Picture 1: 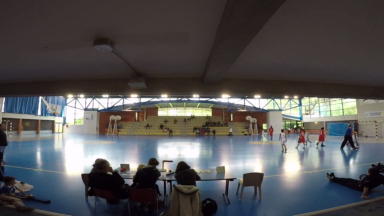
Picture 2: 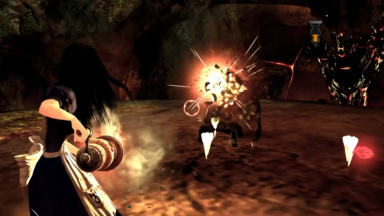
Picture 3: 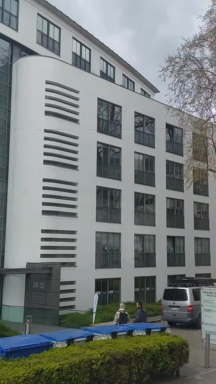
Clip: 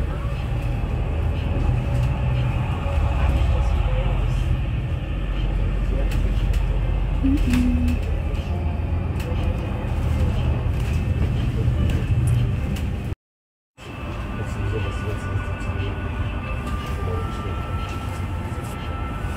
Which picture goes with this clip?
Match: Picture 3